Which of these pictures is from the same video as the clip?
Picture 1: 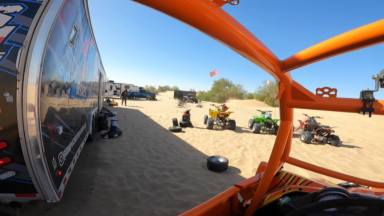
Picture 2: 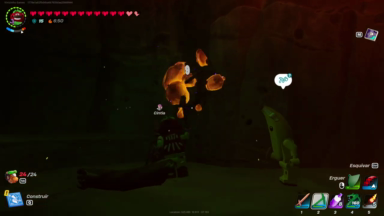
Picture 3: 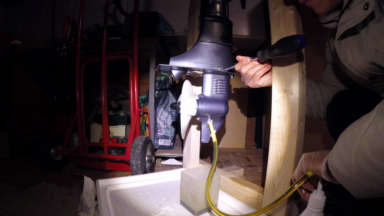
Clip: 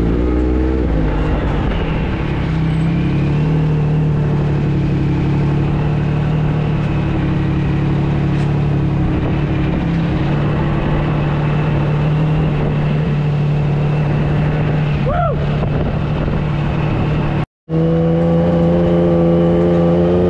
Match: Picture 1